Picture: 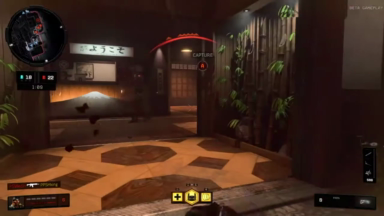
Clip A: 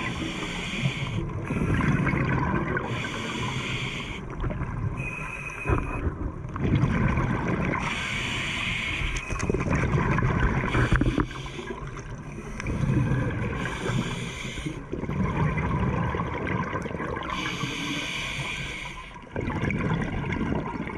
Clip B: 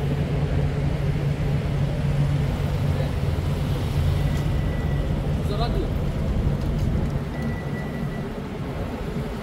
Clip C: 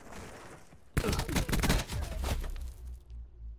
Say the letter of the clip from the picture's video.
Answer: C